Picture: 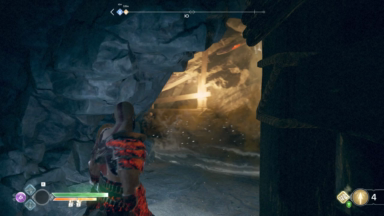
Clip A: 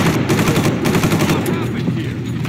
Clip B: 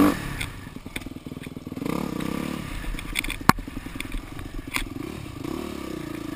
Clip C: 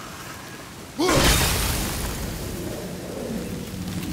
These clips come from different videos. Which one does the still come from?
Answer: C